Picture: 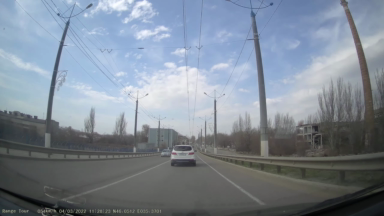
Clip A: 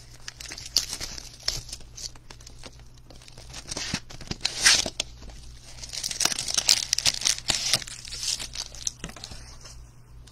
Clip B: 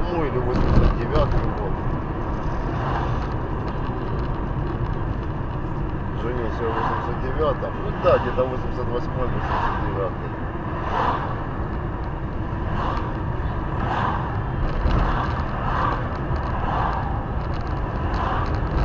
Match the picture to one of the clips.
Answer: B